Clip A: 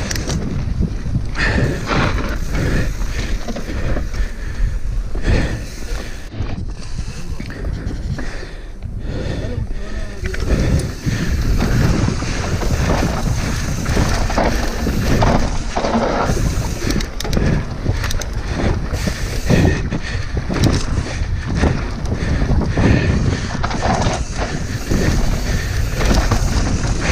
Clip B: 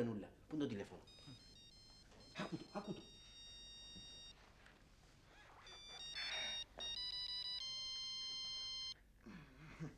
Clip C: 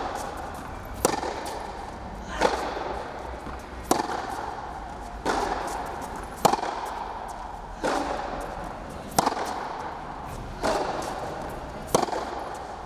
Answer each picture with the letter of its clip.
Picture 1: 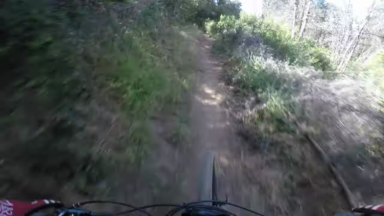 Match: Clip A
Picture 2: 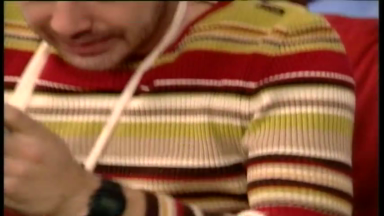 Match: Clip B